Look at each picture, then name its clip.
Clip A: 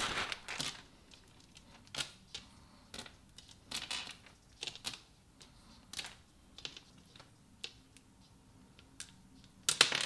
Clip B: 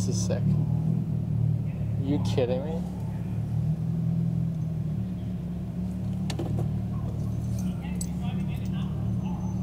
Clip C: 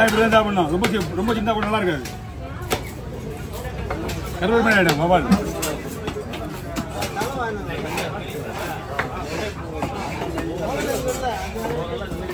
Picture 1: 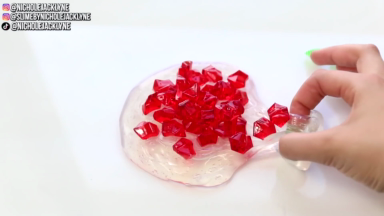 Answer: A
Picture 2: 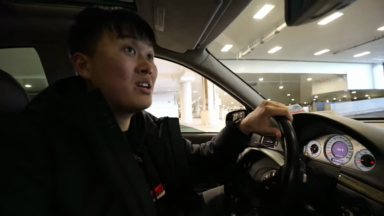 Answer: B